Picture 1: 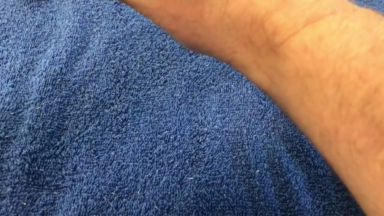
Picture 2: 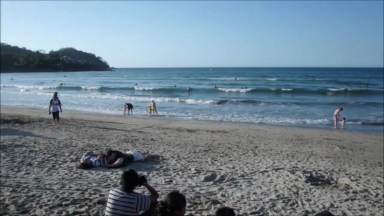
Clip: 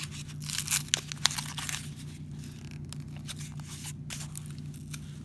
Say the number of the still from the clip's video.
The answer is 1